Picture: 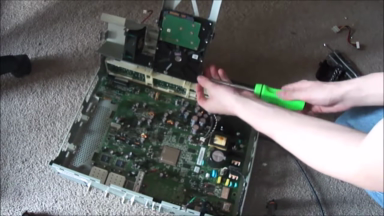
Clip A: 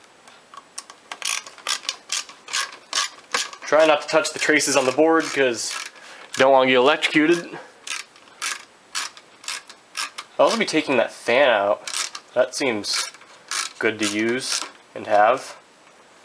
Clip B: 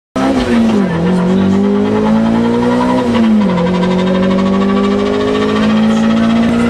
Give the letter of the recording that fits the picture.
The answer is A